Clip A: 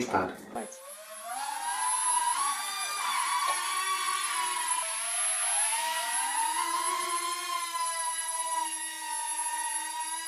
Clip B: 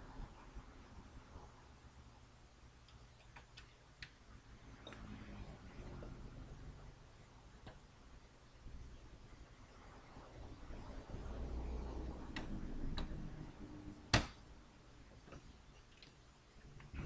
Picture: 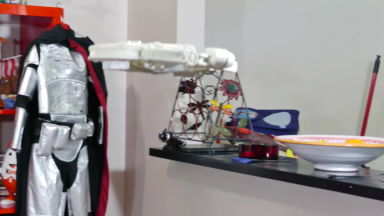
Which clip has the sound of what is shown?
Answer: A